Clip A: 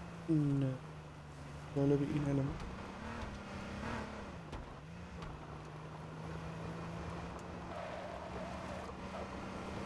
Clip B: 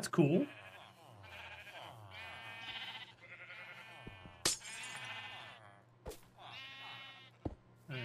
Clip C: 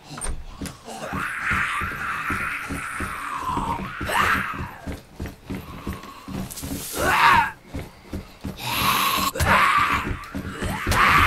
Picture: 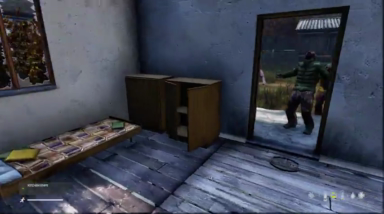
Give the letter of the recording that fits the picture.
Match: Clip C